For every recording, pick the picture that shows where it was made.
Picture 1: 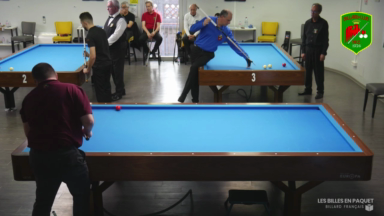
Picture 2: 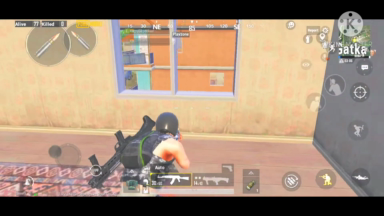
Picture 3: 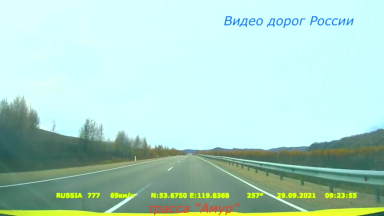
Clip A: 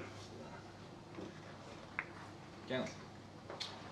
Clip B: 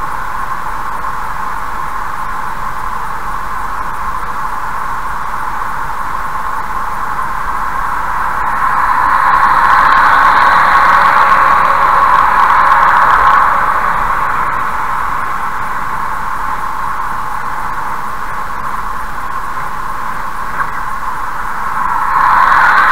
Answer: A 1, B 3